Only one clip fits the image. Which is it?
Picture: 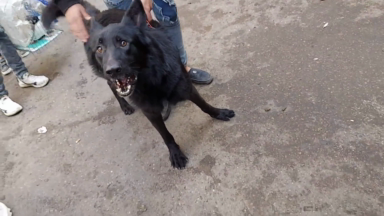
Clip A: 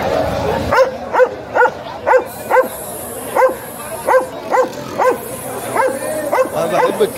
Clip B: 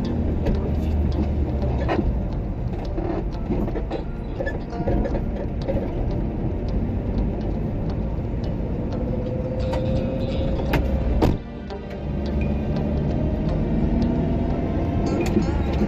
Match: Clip A